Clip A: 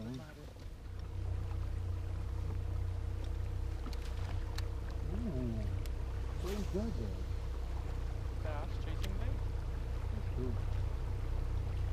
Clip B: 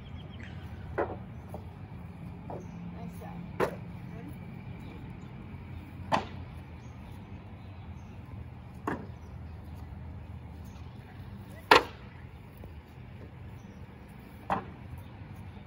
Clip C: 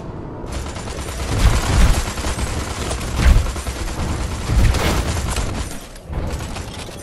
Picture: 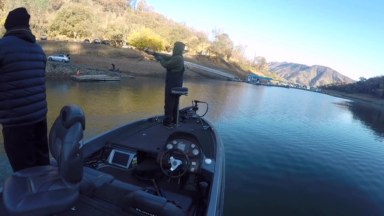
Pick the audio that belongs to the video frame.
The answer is A